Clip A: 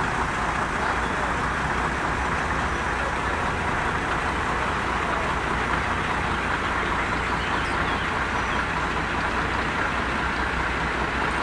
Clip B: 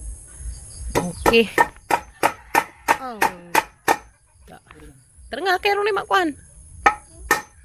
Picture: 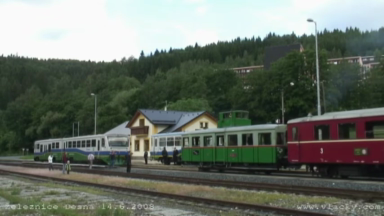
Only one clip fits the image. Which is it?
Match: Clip A